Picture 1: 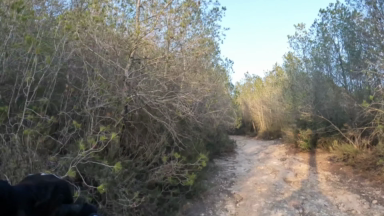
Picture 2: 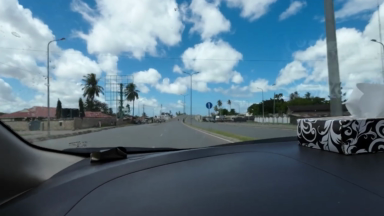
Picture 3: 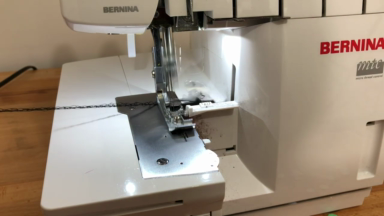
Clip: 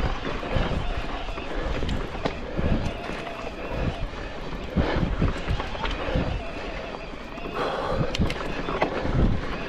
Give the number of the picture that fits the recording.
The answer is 1